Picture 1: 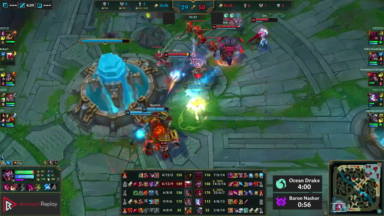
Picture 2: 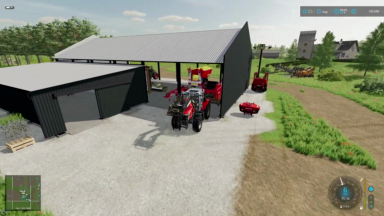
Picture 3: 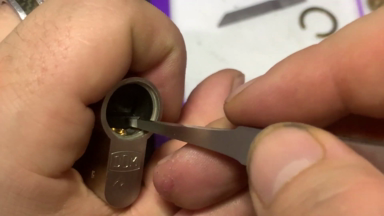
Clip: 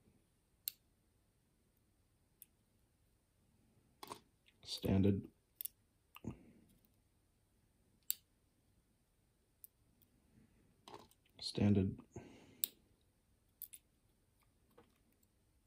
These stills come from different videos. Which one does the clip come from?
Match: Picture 3